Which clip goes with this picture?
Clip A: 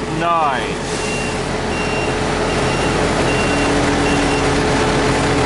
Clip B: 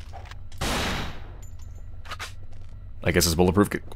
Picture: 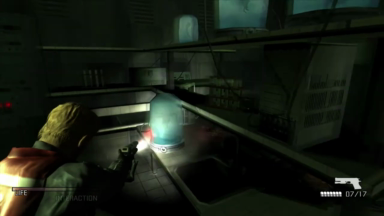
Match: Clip B